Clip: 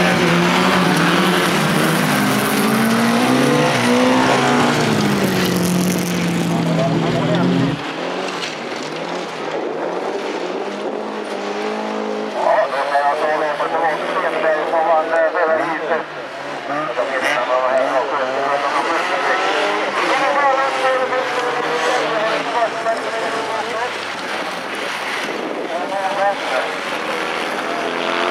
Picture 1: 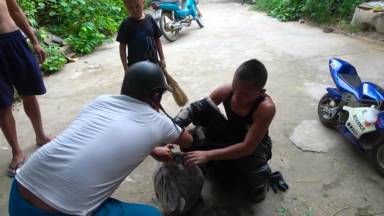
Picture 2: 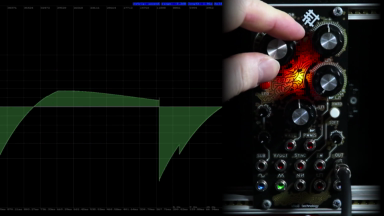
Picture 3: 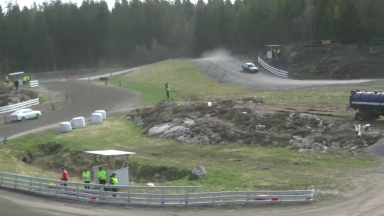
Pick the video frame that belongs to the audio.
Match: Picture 3